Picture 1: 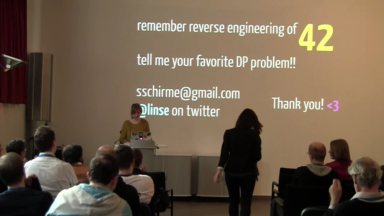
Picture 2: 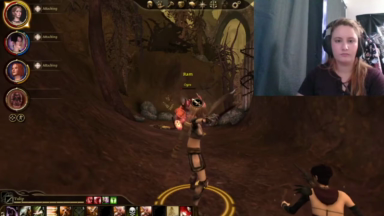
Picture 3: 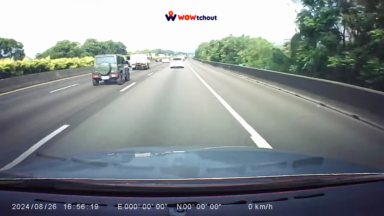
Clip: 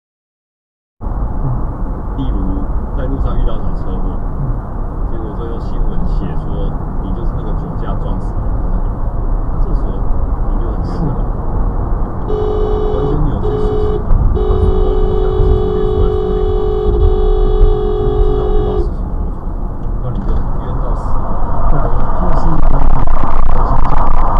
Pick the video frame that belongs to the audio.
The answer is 3